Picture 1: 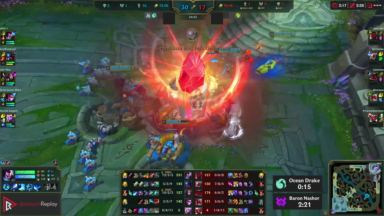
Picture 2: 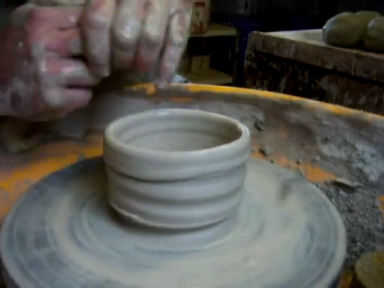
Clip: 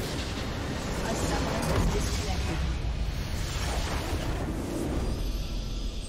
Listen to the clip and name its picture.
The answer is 1